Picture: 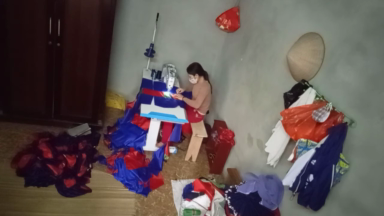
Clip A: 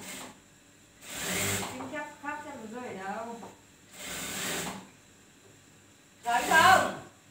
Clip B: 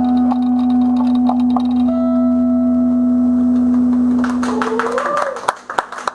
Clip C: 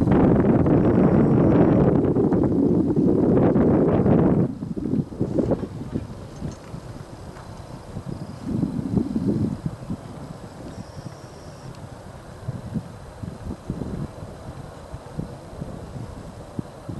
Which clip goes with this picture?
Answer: A